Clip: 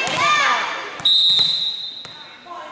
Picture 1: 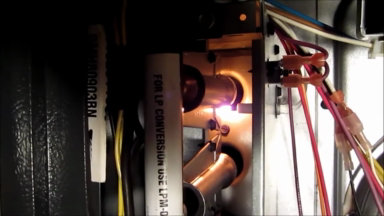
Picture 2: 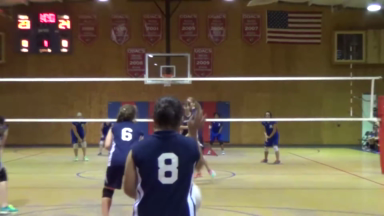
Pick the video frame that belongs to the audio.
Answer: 2